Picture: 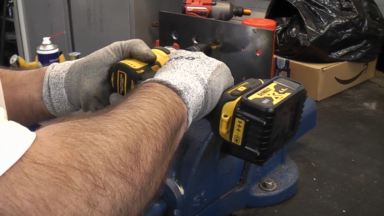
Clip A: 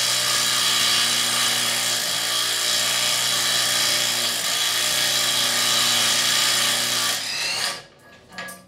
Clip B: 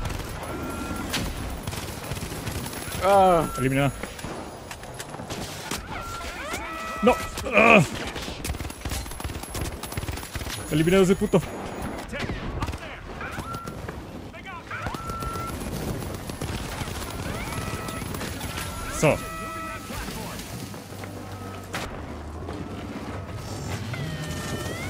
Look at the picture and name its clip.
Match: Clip A